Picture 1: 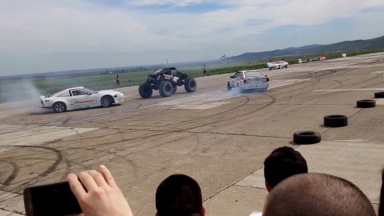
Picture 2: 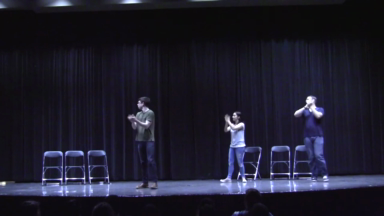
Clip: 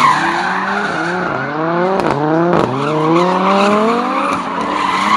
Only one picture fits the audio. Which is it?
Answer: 1